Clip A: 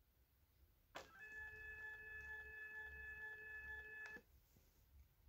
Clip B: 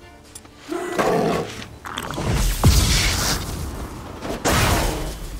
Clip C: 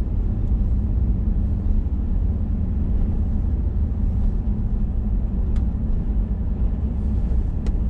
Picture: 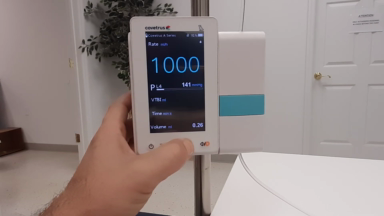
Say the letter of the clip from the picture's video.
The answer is A